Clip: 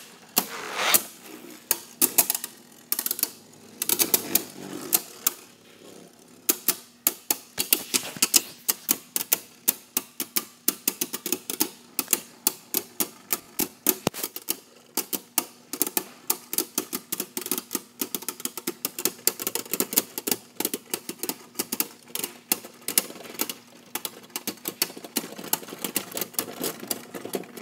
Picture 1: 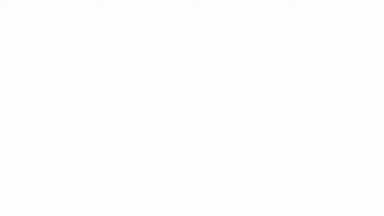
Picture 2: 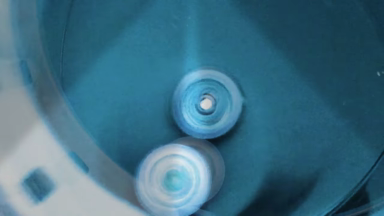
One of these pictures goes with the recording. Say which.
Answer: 2